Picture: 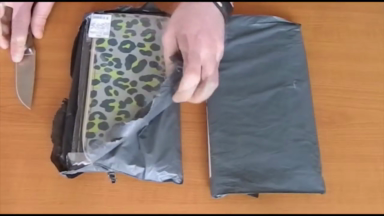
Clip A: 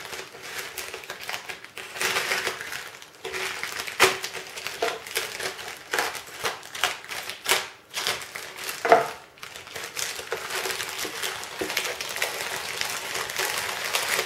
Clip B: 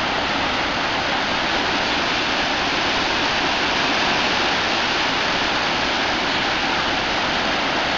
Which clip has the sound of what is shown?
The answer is A